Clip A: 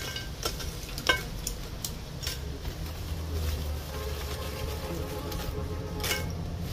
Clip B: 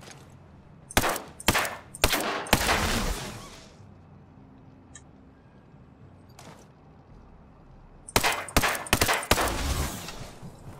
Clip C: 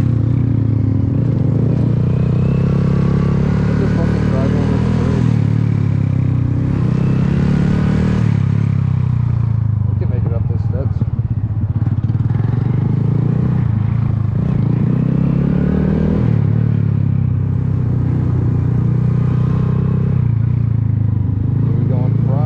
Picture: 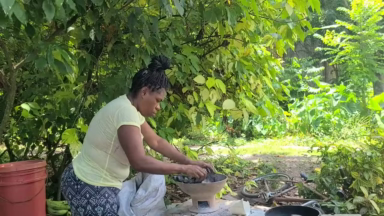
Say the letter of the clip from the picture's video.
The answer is A